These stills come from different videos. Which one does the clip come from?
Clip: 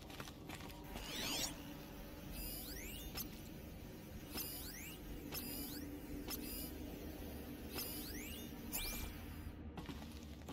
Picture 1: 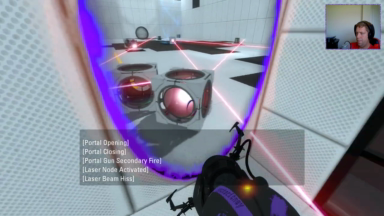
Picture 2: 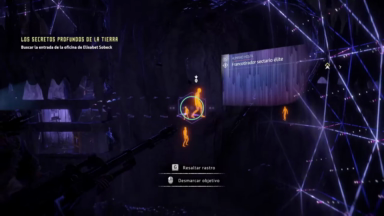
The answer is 2